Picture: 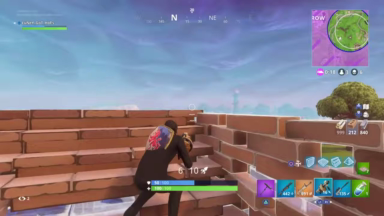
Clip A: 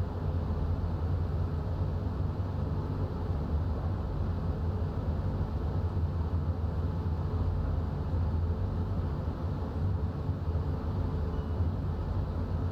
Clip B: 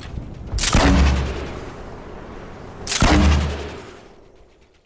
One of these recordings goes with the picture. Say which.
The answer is B